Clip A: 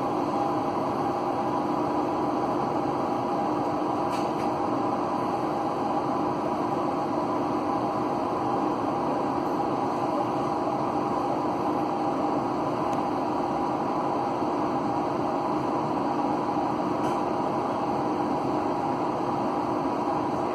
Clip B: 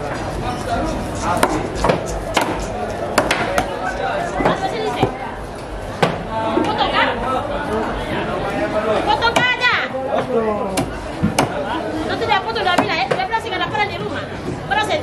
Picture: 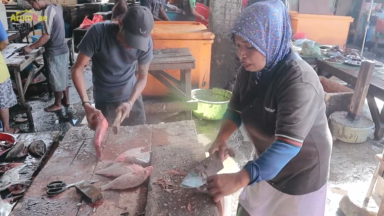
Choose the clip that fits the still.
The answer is B